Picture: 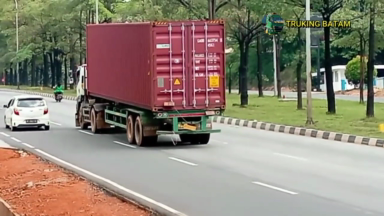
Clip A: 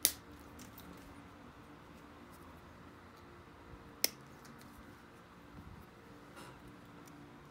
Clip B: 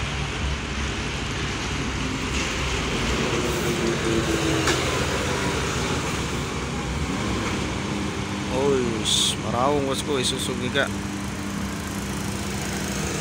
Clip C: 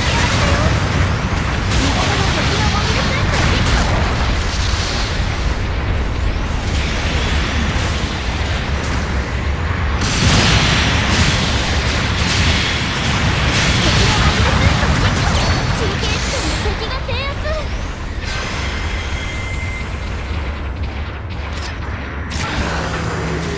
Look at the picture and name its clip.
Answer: B